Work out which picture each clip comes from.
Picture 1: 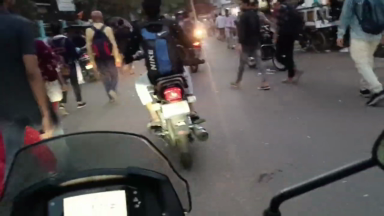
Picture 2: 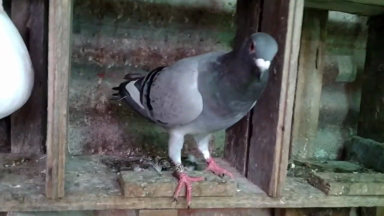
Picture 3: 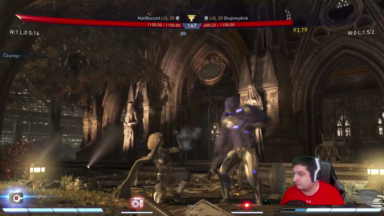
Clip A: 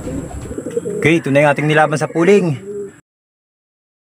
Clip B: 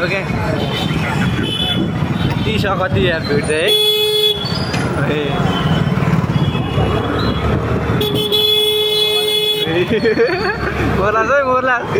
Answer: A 2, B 1